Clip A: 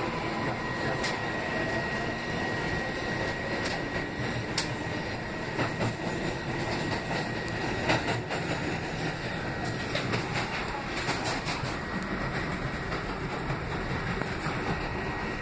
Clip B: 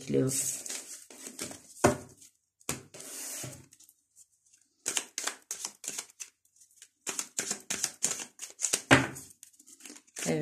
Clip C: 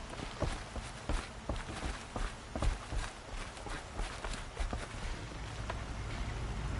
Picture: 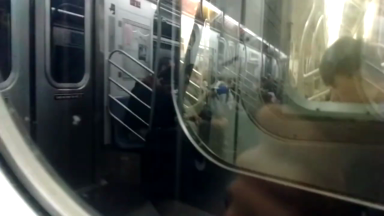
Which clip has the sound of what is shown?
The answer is A